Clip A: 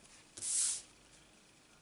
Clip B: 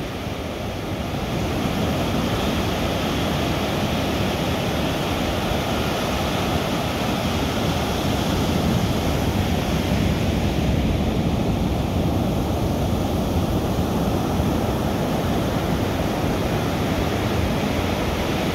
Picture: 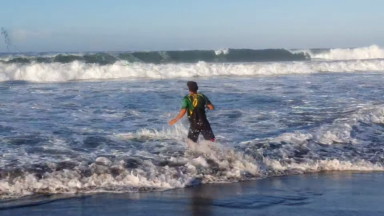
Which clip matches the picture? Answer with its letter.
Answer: B